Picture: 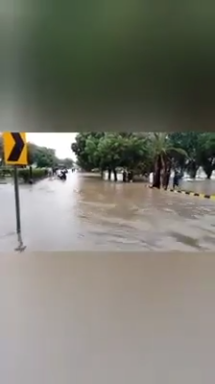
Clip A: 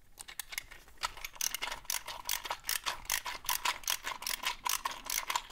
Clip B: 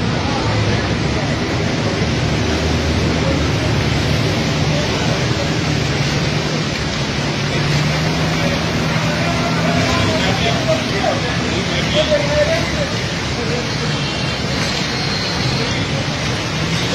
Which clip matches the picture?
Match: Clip B